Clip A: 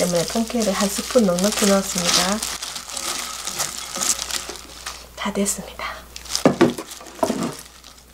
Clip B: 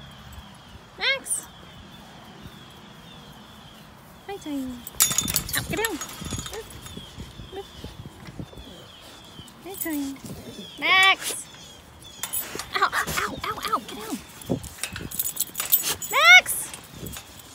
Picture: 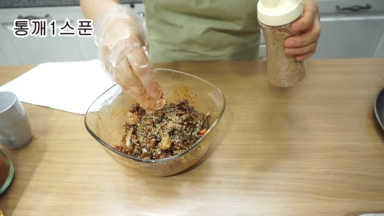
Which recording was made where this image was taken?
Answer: A